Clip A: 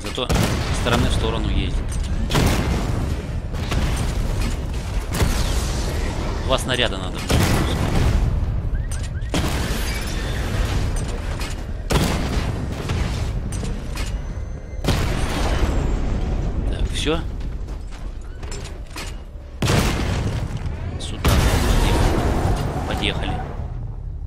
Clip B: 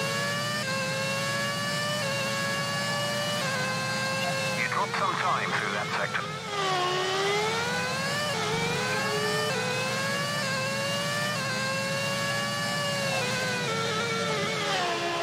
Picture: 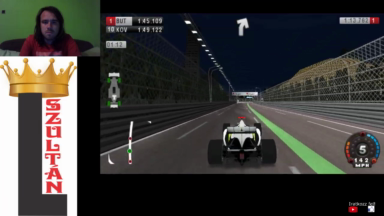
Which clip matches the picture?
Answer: B